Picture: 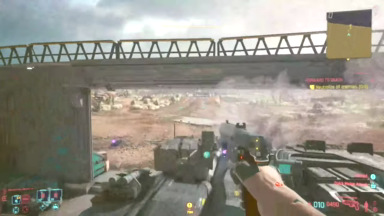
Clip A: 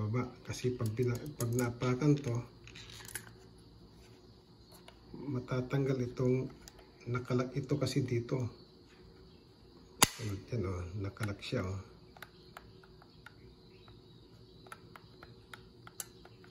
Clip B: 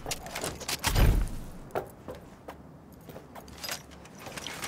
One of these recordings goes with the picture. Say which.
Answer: B